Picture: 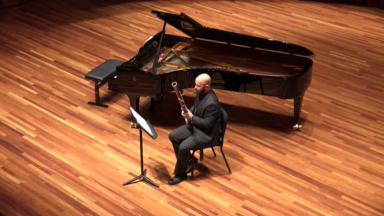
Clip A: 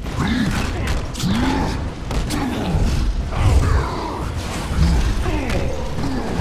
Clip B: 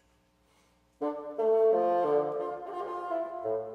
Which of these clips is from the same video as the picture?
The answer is B